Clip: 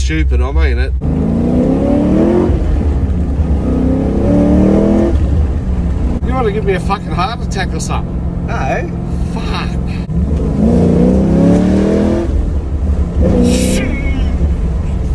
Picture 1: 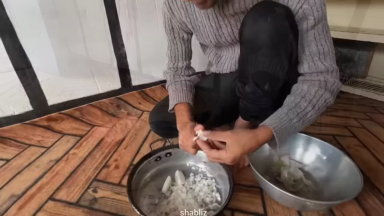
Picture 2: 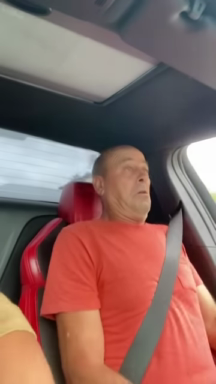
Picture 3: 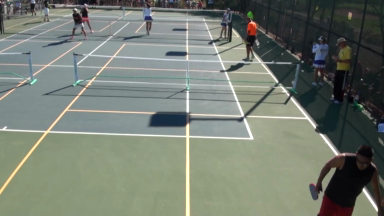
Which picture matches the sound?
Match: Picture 2